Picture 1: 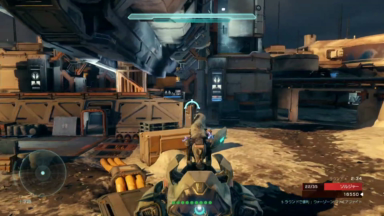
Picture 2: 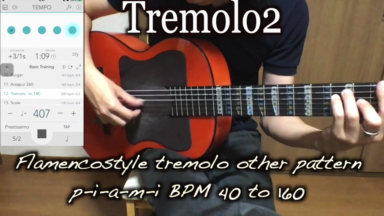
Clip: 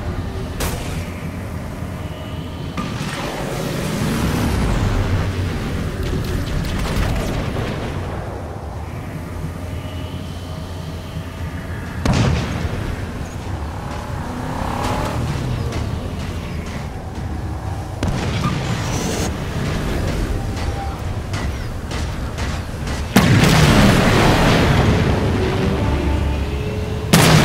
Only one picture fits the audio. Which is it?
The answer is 1